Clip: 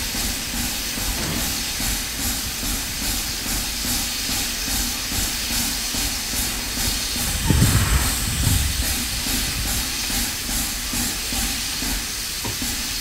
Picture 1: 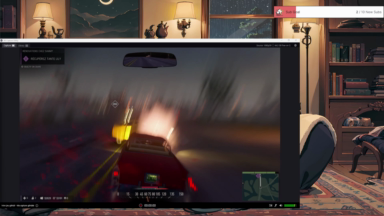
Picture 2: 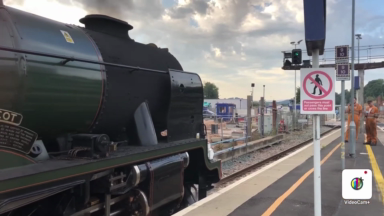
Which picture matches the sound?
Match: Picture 2